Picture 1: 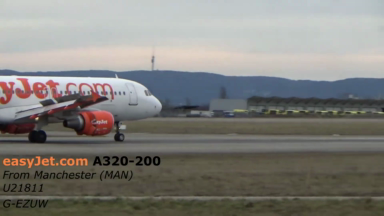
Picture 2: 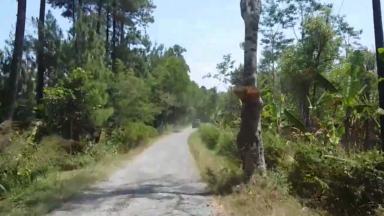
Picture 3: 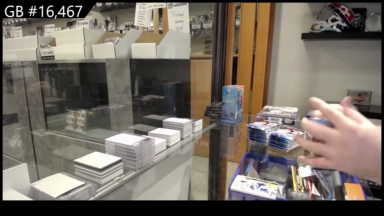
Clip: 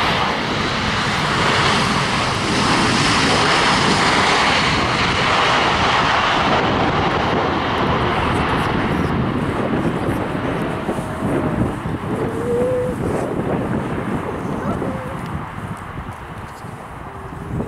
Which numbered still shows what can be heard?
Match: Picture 1